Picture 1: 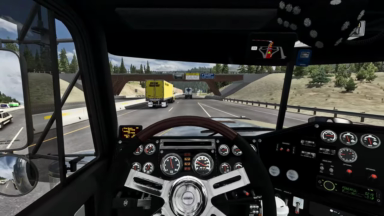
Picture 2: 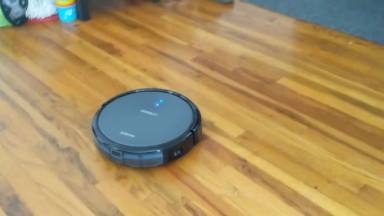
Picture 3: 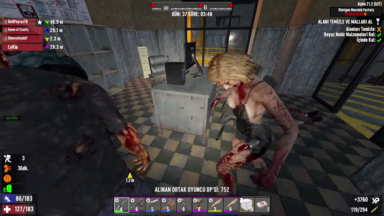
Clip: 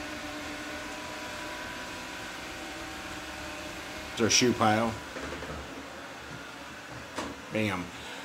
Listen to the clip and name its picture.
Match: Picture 2